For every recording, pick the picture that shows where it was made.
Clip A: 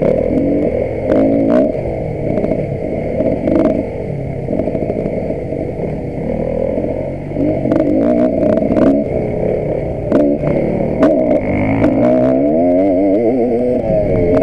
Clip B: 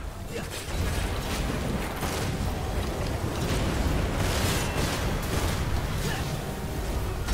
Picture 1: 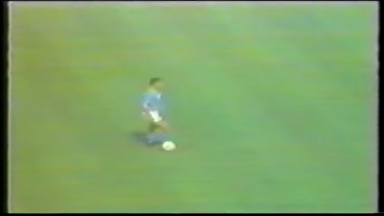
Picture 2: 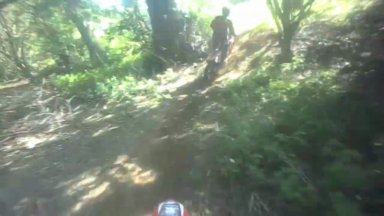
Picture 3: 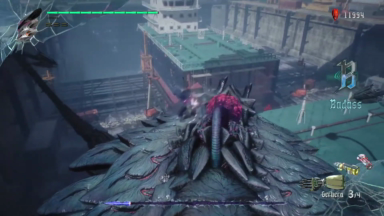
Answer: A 2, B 3